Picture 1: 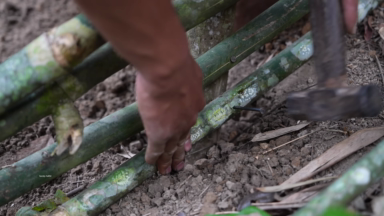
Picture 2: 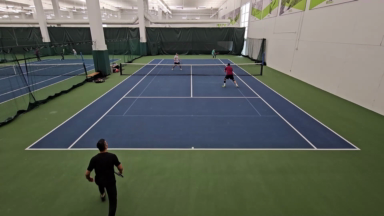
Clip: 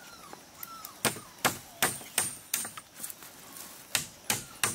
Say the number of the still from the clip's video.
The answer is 1